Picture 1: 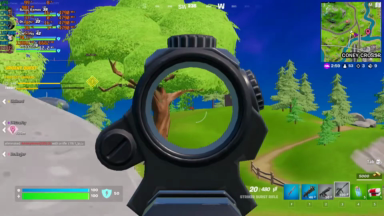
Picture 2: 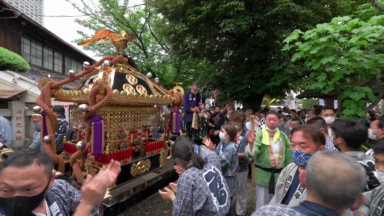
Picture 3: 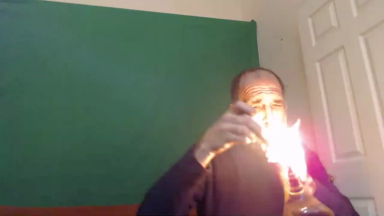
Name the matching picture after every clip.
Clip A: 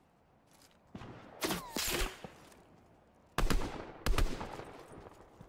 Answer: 1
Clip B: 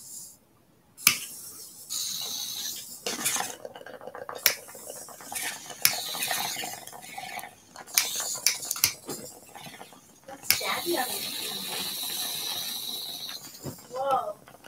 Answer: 3